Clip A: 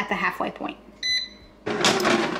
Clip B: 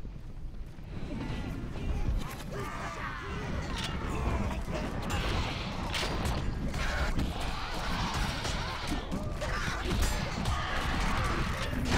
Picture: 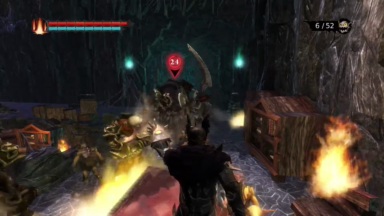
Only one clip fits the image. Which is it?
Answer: B